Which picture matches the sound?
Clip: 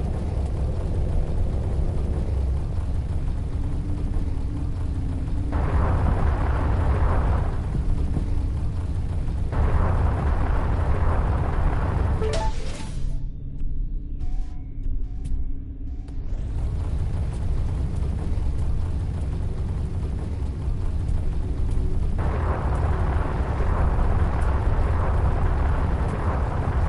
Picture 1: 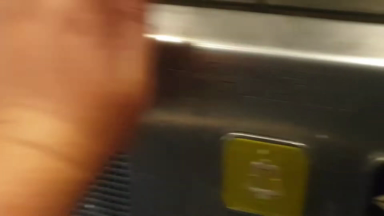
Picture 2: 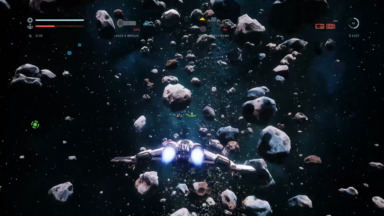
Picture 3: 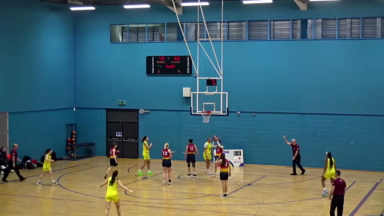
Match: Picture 2